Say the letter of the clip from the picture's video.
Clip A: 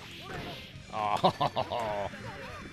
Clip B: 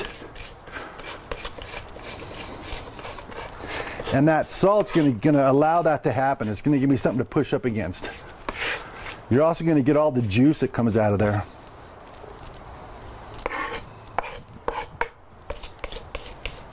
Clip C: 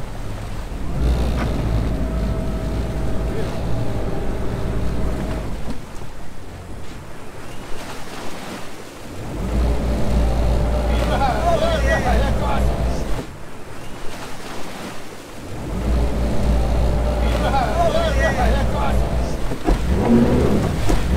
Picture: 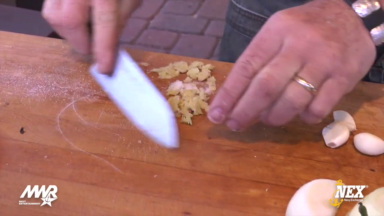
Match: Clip B